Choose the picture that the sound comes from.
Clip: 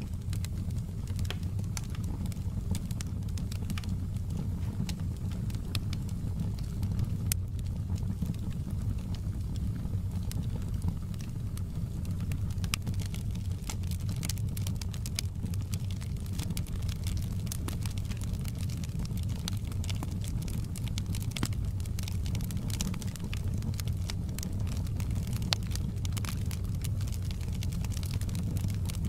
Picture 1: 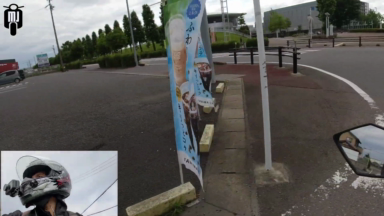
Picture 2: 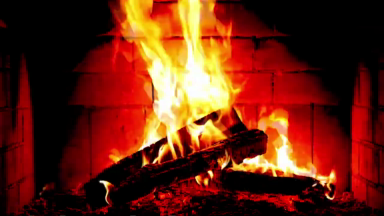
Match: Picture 2